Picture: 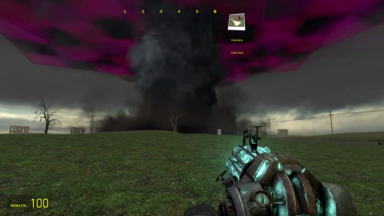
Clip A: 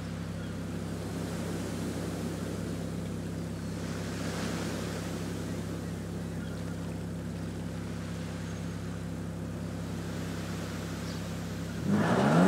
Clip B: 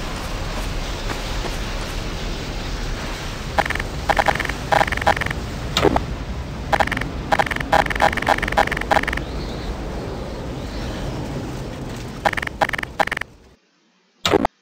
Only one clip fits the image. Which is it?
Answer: B